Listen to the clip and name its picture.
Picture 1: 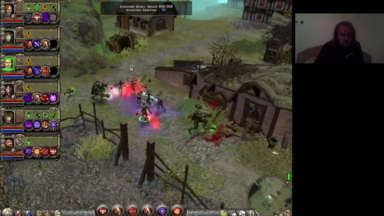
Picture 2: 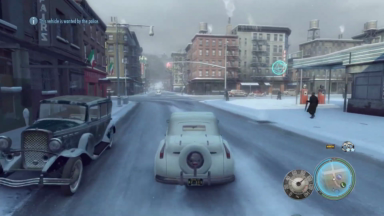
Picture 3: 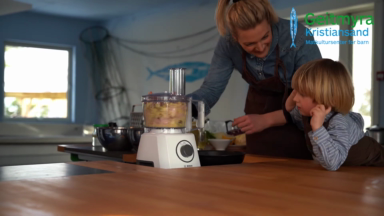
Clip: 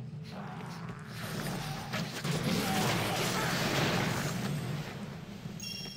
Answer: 1